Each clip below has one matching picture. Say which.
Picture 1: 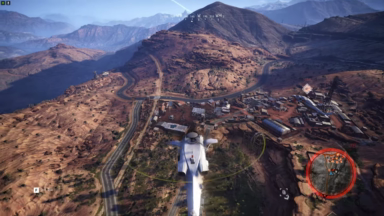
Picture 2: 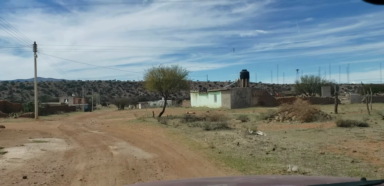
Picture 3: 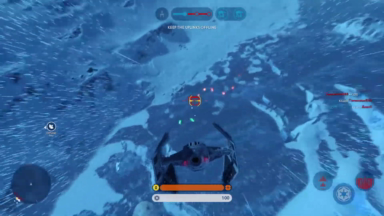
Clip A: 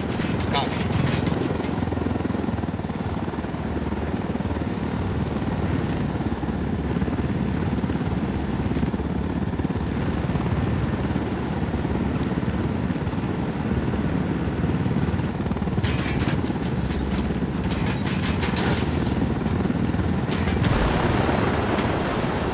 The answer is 1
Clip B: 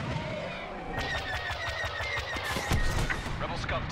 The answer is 3